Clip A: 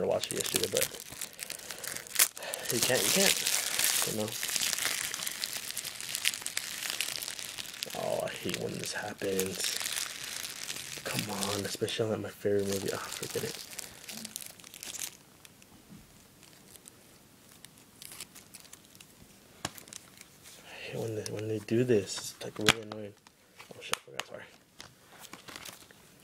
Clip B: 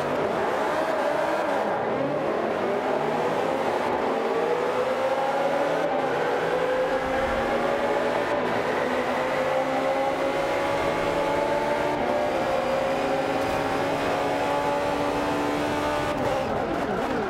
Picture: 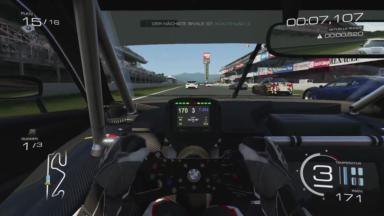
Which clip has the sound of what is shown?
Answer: B